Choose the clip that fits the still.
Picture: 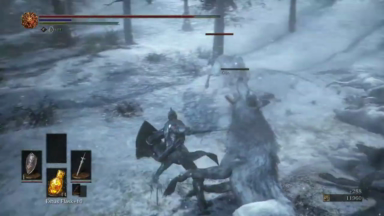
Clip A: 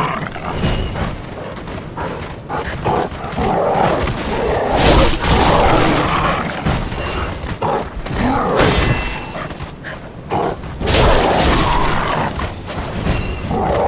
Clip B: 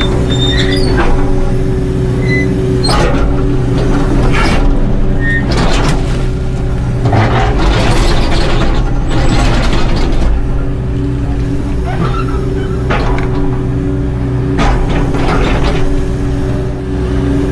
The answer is A